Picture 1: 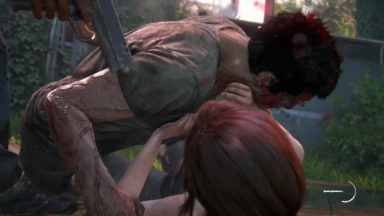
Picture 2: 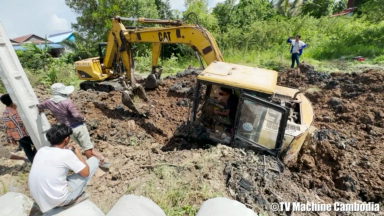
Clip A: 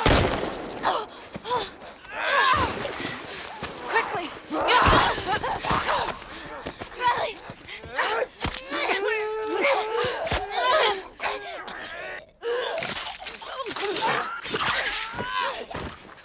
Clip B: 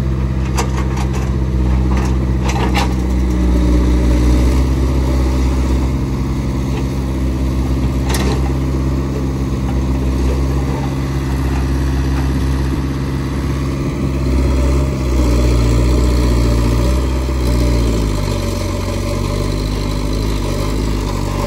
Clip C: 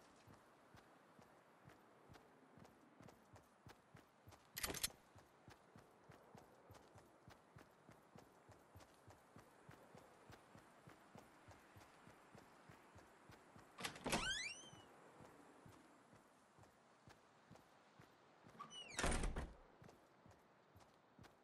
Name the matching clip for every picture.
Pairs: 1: A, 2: B